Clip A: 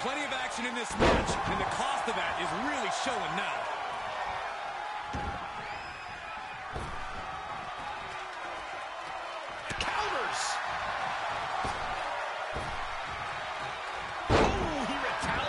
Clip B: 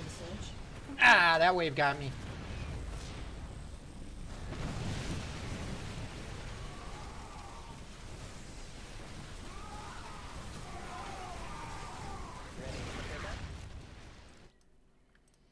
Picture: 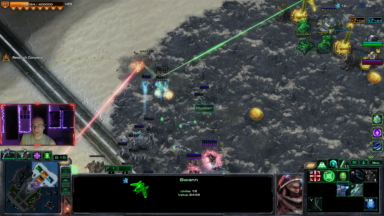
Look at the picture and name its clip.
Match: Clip B